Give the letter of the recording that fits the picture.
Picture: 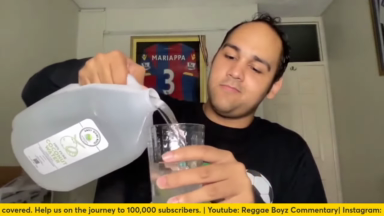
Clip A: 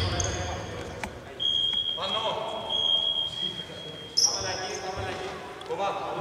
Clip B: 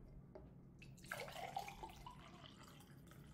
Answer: B